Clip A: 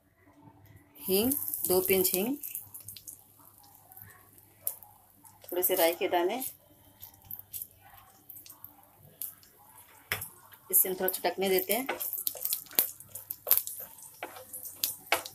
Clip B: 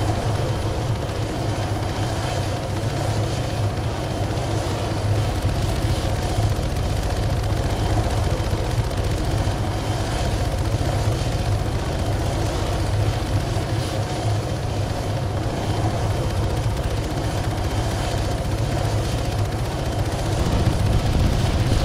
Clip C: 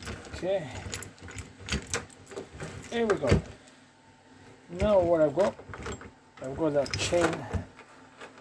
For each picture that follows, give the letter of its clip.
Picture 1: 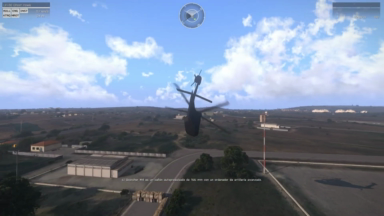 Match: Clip B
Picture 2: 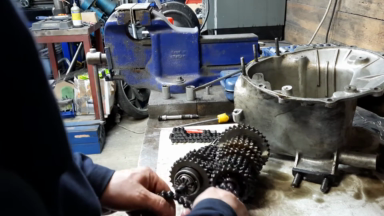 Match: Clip C